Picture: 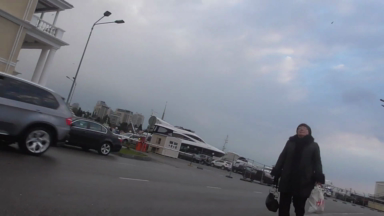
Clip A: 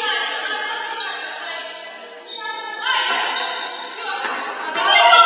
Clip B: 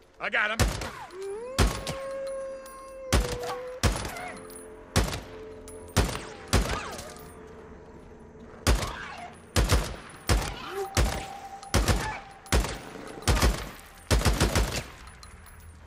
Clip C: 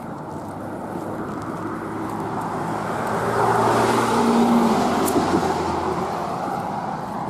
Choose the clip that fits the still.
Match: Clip C